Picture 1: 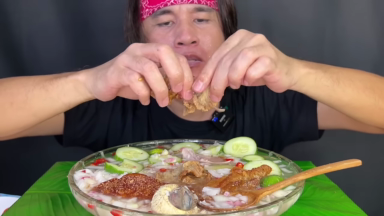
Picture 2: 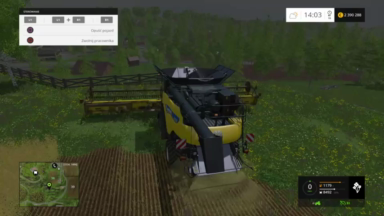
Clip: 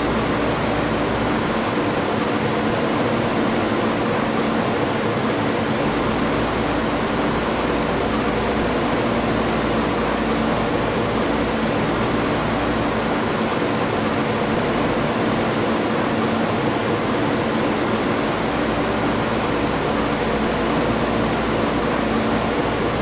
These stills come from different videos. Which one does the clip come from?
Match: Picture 2